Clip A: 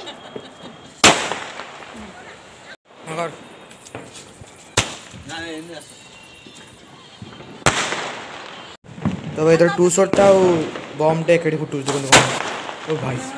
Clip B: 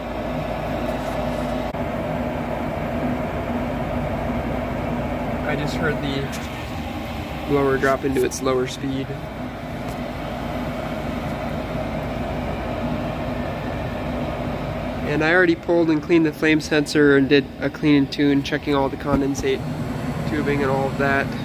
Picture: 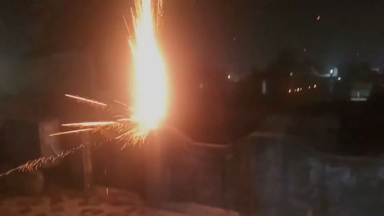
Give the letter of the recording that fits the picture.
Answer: A